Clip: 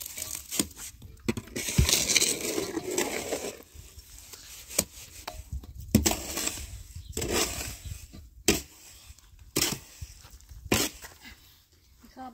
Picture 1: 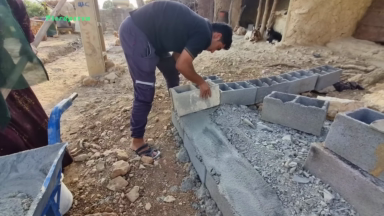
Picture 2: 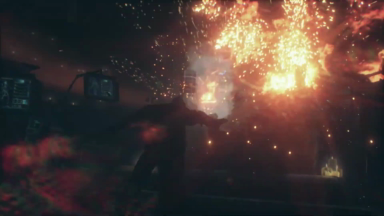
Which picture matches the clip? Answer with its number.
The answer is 1